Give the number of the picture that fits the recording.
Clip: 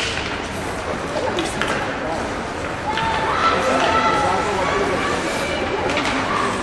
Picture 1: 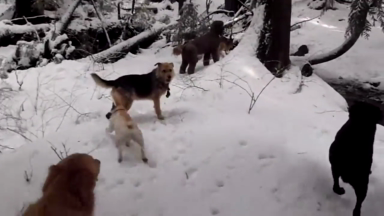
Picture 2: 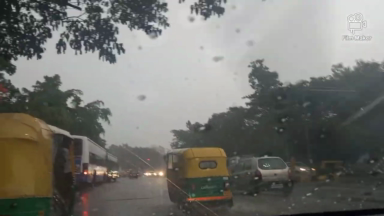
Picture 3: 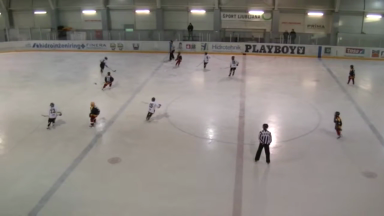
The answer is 3